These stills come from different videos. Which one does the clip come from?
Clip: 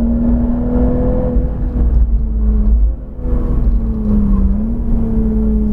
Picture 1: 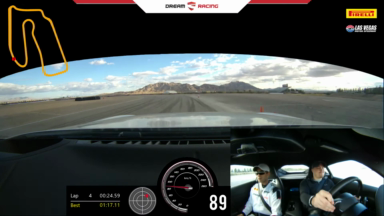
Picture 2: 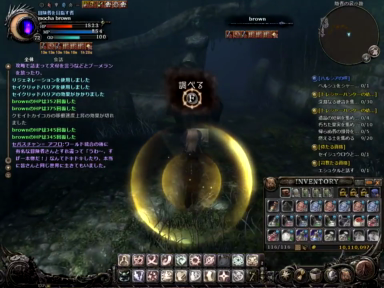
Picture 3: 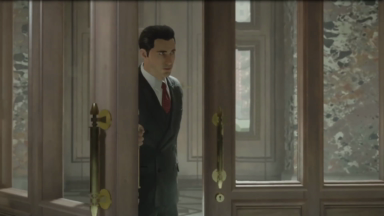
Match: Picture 1